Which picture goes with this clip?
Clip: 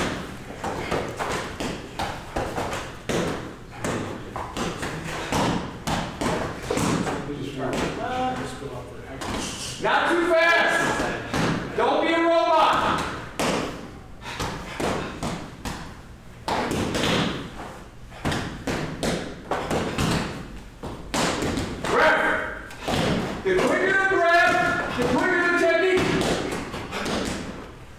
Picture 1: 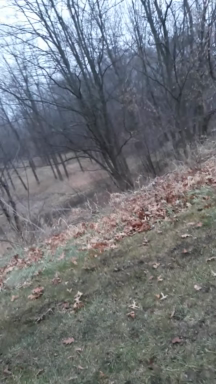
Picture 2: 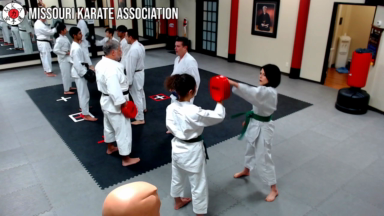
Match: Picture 2